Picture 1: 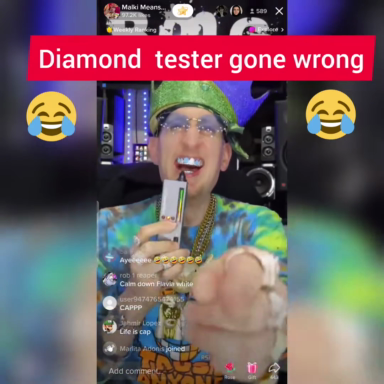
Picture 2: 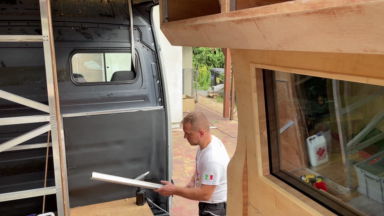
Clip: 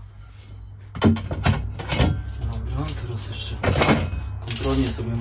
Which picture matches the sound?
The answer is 2